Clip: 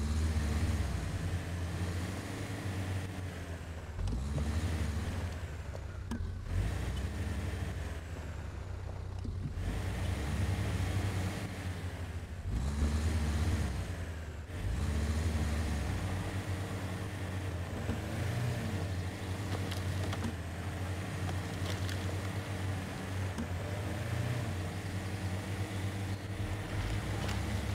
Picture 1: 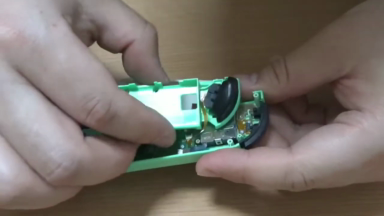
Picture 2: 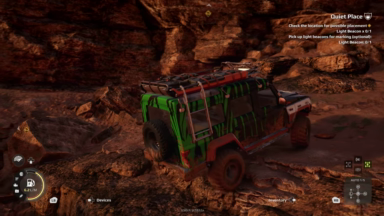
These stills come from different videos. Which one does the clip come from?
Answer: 2